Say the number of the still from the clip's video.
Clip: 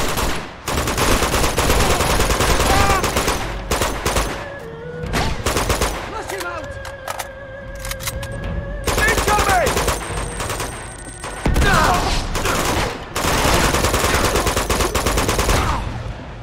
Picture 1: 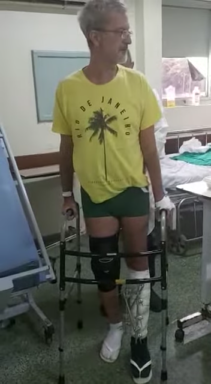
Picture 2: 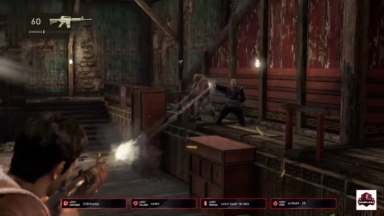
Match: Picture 2